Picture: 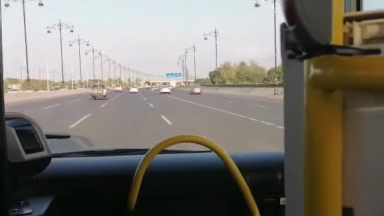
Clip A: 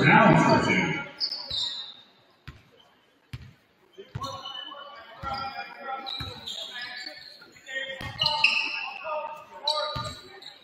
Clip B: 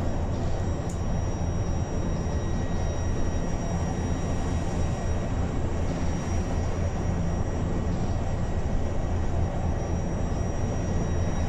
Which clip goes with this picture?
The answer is B